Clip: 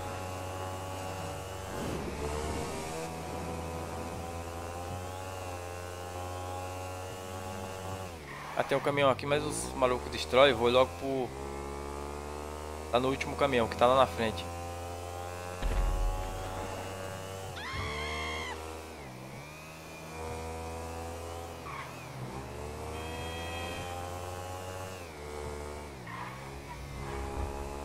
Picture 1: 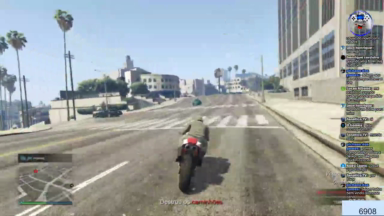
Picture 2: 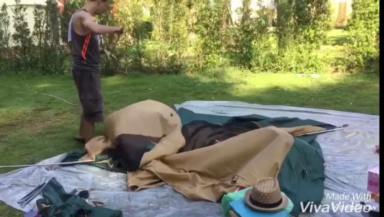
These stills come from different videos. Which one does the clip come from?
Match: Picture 1